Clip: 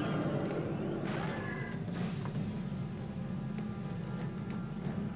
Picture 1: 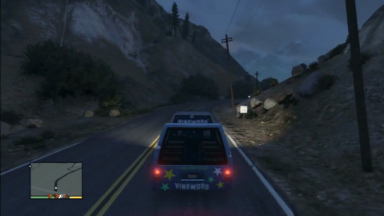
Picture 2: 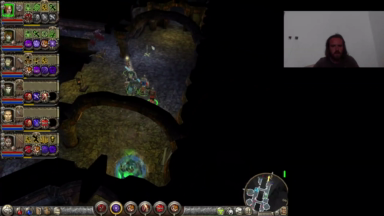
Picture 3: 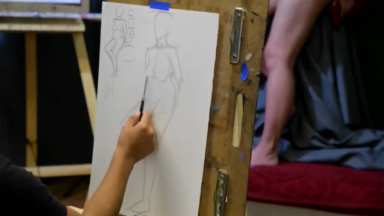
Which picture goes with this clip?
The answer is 2